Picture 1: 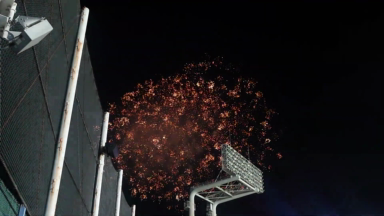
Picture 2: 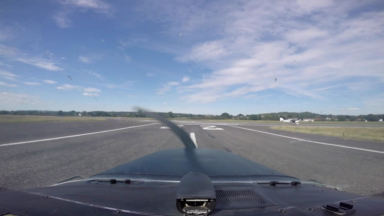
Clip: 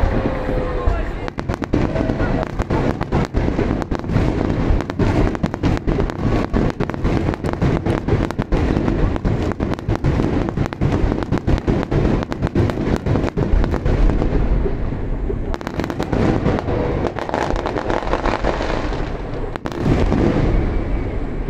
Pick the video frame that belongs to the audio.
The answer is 1